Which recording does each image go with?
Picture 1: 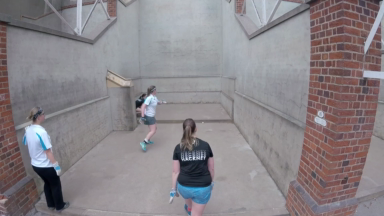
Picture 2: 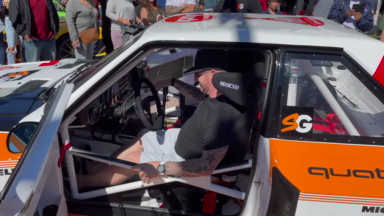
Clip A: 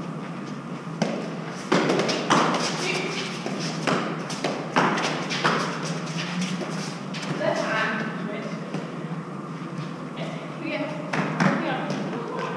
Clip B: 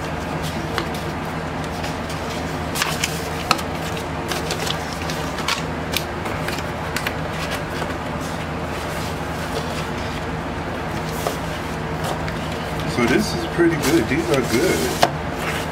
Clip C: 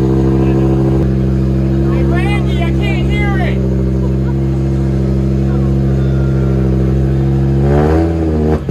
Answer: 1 A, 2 C